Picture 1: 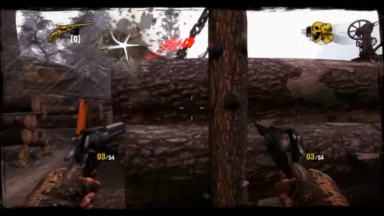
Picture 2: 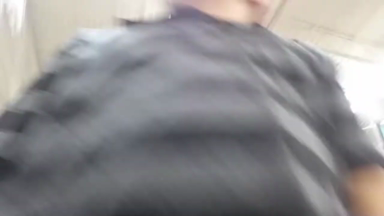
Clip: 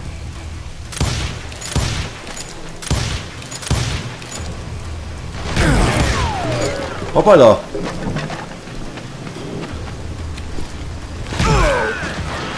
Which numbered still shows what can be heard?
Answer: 1